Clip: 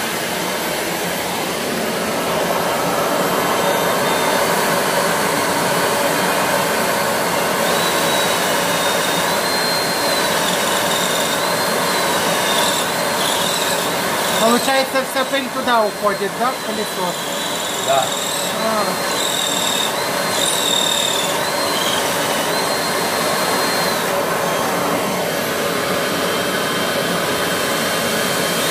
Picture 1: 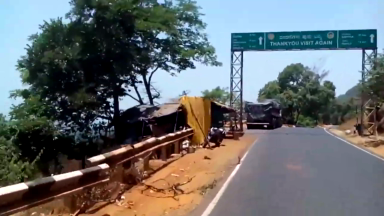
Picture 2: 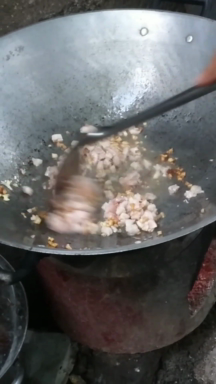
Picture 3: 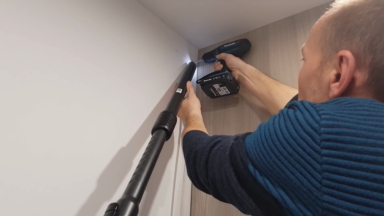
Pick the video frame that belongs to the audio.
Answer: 3